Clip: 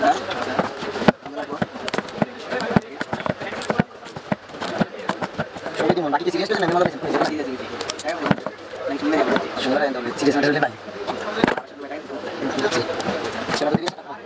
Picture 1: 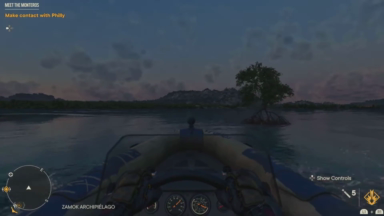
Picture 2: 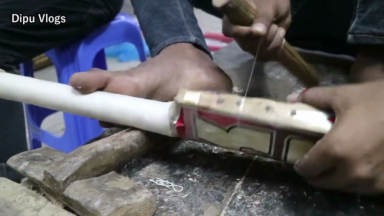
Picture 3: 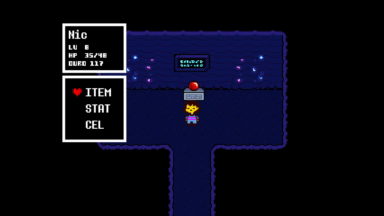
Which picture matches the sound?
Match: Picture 2